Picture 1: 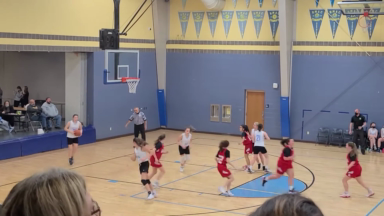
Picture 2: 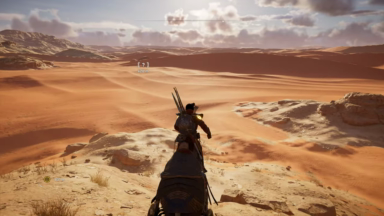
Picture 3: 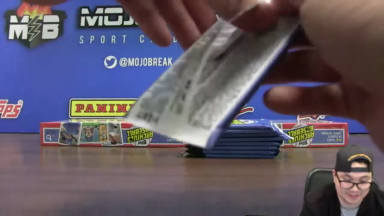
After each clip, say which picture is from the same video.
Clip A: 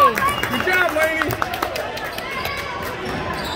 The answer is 1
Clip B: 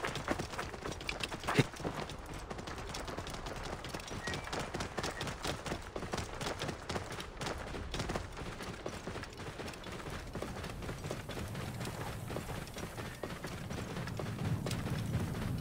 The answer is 2